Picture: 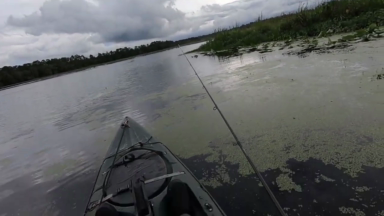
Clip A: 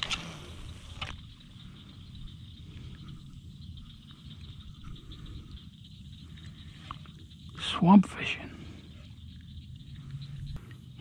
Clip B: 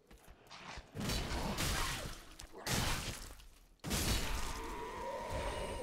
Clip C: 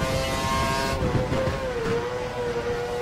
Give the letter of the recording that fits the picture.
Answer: A